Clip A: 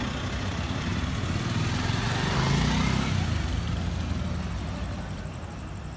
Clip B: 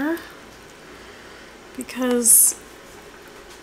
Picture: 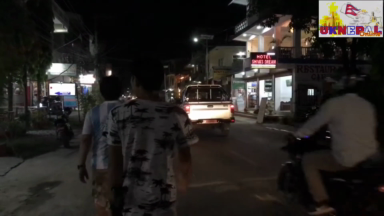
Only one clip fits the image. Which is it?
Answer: A